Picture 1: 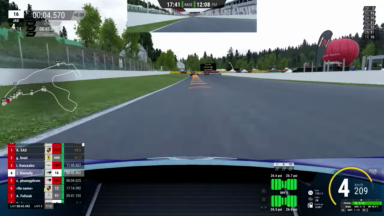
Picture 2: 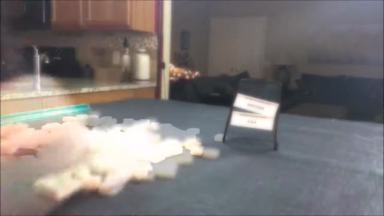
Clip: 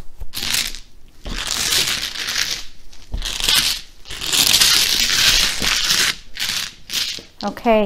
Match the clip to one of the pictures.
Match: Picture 2